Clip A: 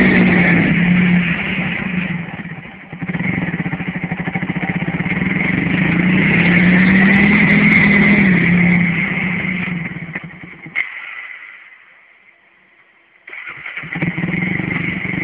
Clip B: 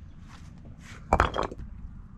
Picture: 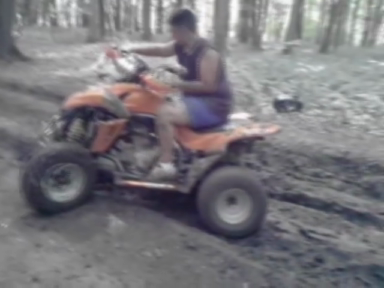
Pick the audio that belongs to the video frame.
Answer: A